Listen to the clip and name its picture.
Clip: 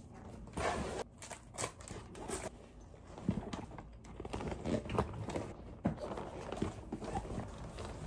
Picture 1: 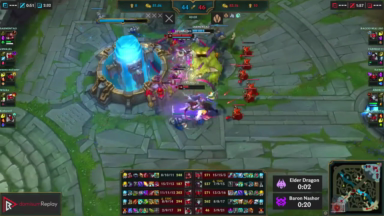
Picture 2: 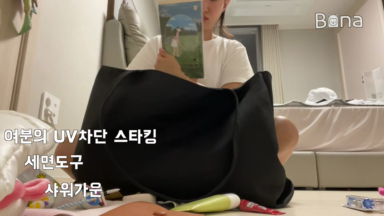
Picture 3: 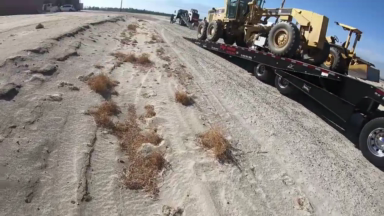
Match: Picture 2